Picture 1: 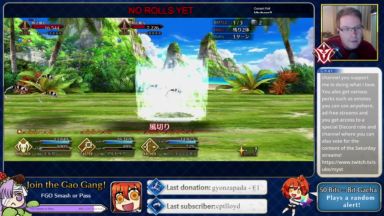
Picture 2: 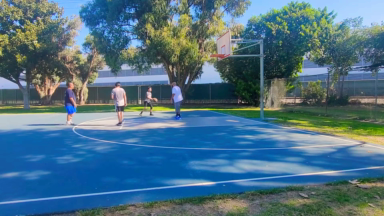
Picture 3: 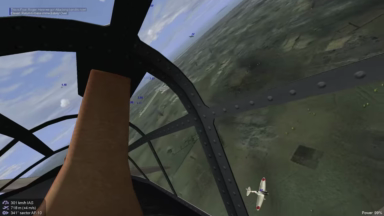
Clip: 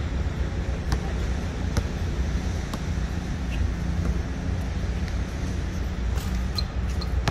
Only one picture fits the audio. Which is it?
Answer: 2